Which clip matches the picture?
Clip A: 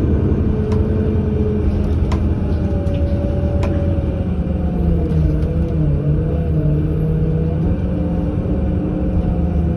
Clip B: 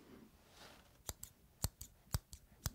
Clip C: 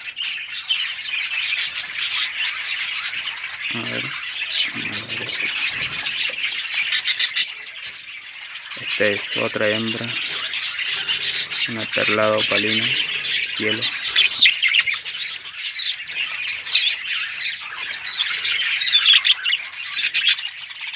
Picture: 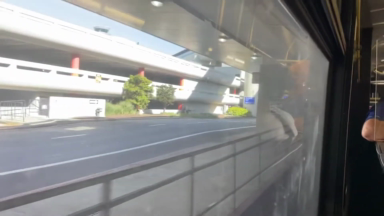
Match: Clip A